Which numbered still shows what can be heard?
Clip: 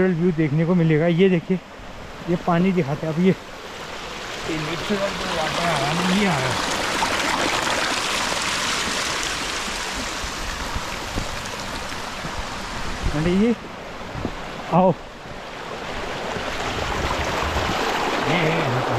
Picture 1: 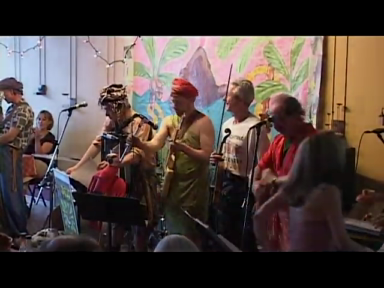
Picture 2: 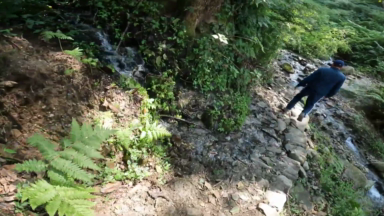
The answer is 2